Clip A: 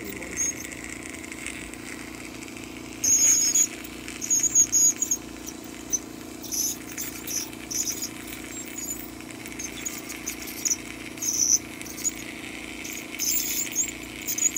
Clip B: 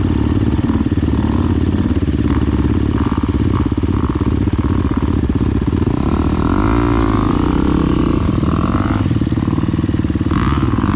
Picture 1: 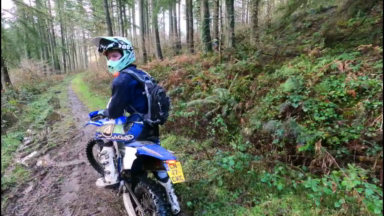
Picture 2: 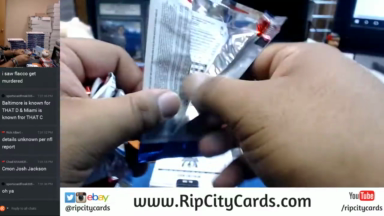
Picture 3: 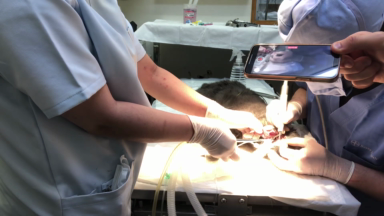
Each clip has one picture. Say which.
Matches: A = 3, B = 1